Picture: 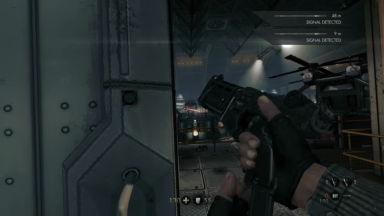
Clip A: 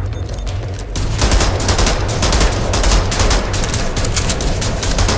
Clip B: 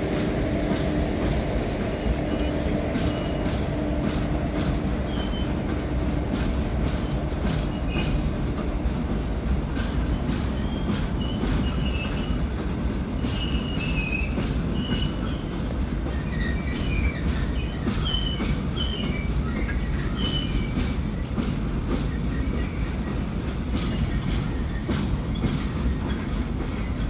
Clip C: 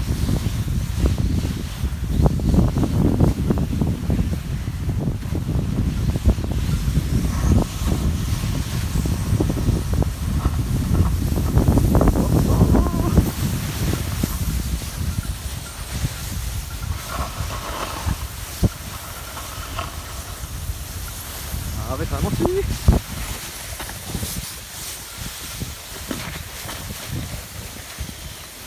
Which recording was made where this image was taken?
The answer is A